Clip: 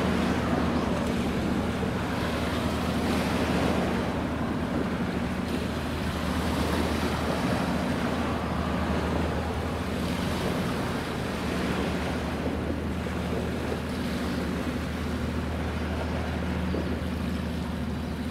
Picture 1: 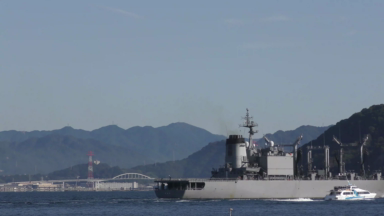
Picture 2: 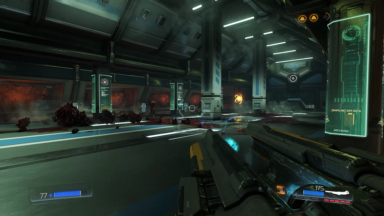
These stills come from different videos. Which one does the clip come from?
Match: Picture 1